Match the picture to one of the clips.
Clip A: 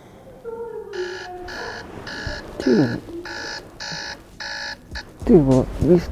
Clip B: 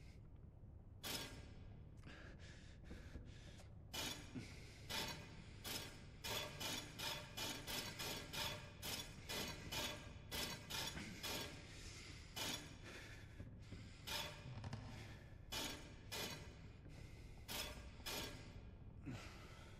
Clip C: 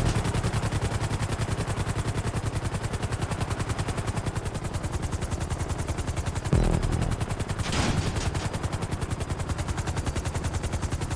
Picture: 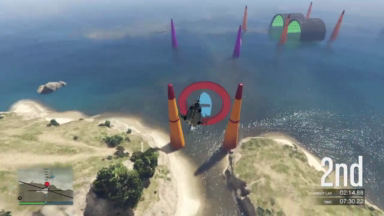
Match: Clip C